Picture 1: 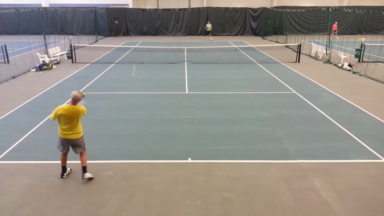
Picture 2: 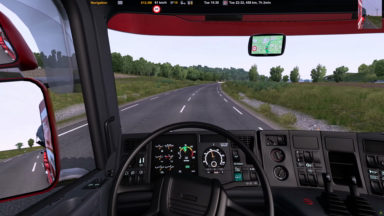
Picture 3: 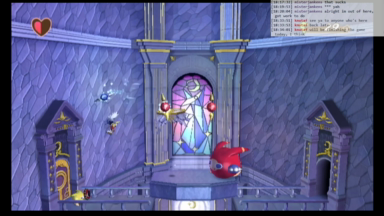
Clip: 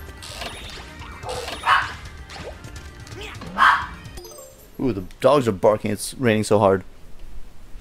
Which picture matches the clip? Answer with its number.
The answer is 3